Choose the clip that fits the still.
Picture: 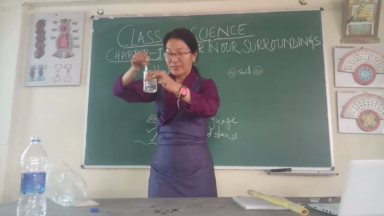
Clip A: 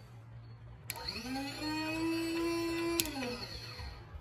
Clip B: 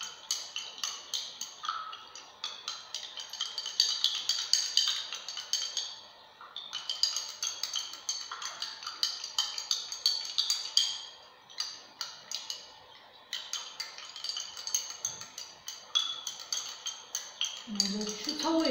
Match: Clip B